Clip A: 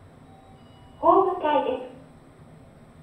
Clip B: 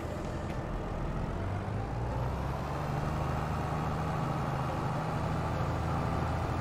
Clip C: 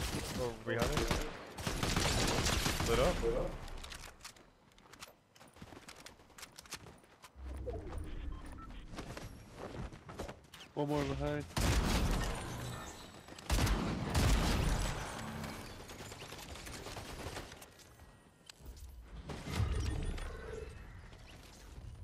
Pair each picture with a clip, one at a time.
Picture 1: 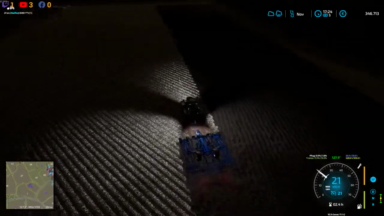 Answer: B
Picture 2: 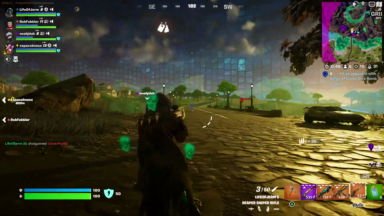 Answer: C